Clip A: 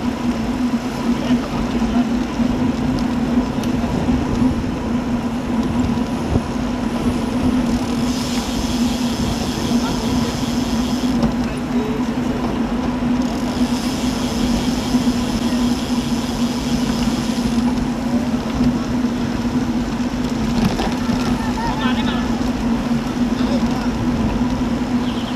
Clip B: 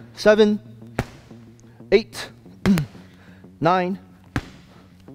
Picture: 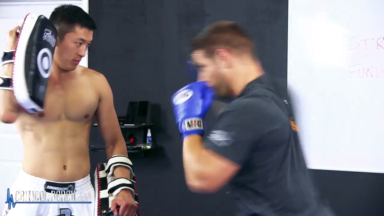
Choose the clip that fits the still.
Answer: B